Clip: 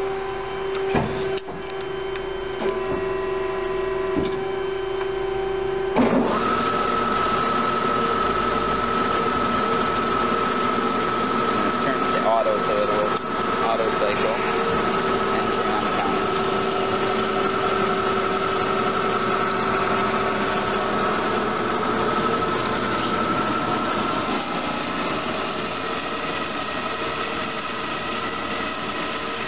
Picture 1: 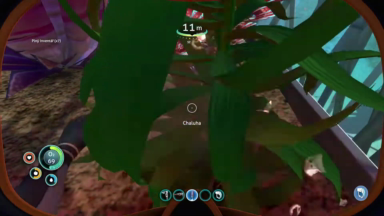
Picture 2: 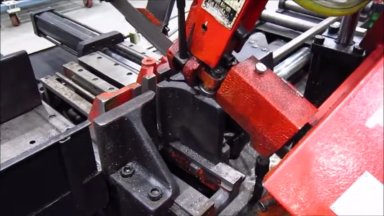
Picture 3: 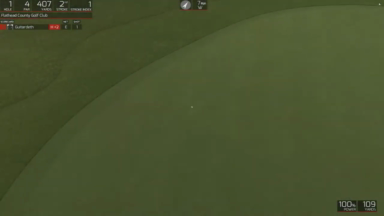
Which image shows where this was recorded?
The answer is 2